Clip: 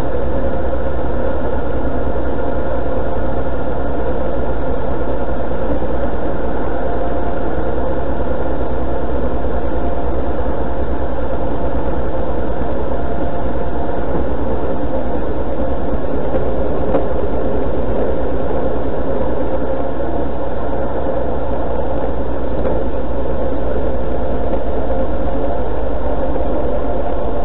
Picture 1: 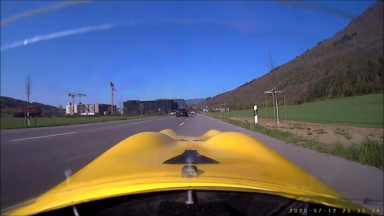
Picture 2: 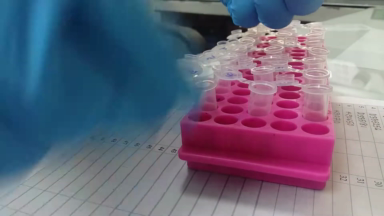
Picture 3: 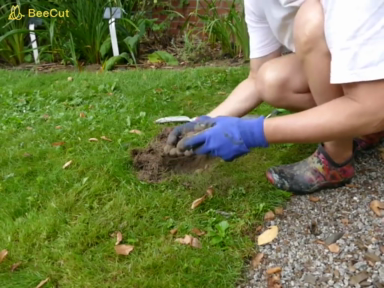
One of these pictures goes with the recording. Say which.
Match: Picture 1